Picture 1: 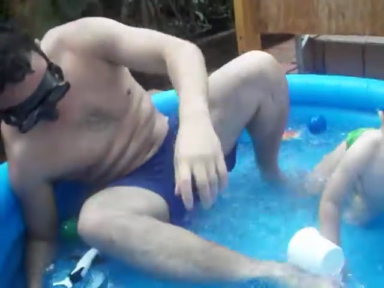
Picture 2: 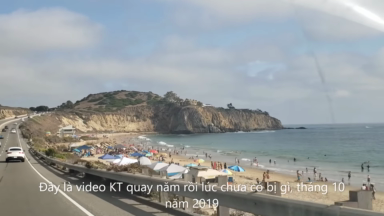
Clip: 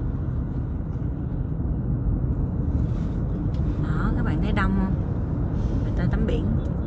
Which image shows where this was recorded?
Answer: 2